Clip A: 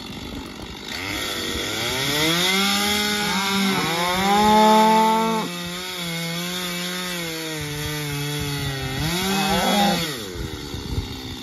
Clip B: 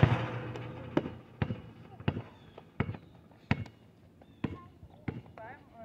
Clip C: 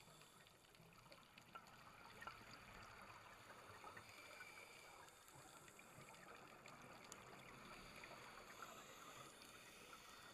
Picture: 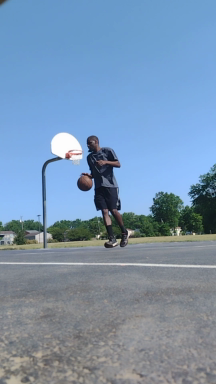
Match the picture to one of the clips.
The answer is B